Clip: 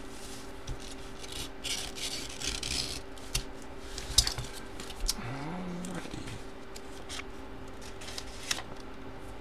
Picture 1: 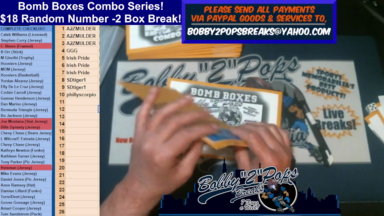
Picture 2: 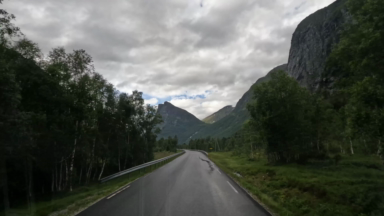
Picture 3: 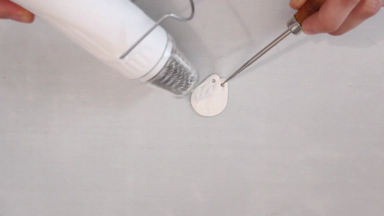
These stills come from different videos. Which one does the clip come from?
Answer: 1